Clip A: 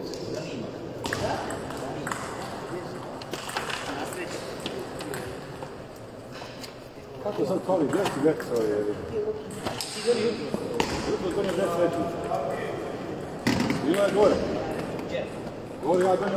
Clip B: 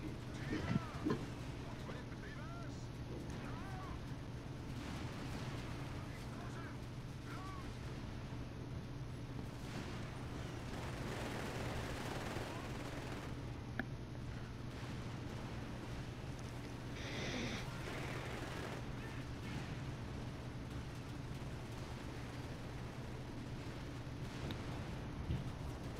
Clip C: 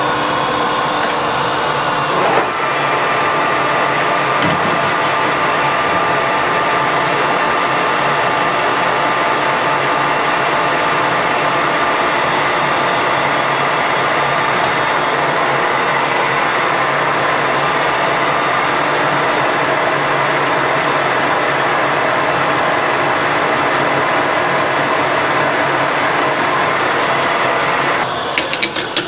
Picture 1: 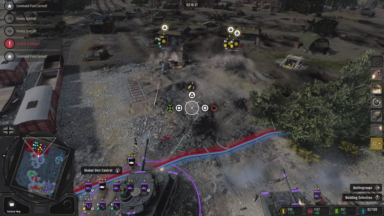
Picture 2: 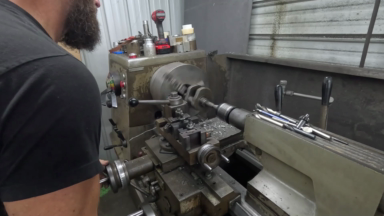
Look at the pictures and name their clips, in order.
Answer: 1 B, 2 C